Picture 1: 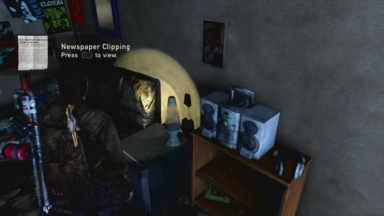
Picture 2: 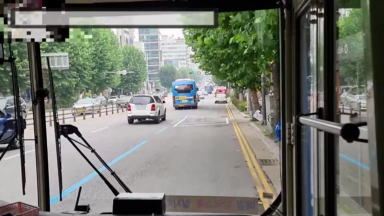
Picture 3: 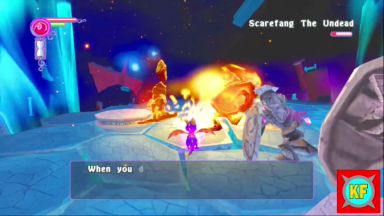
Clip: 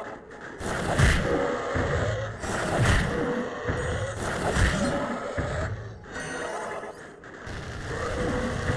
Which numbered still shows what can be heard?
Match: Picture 3